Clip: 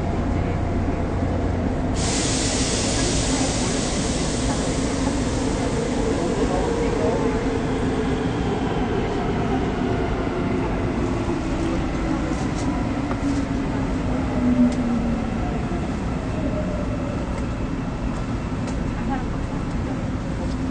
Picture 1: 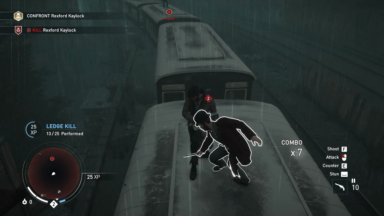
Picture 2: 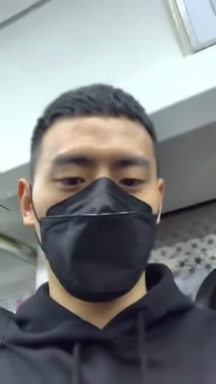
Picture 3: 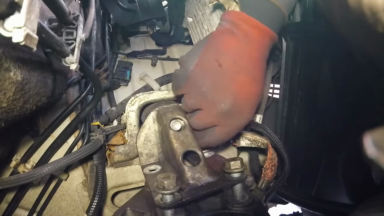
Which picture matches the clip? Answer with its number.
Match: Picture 2